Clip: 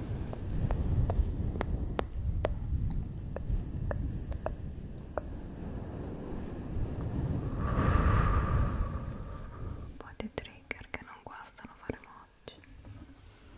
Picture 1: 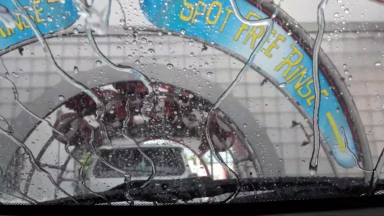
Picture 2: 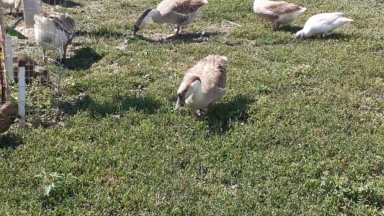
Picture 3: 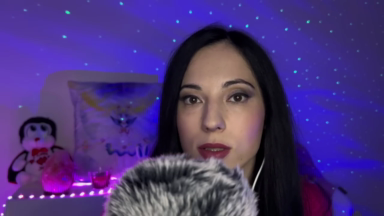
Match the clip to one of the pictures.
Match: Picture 3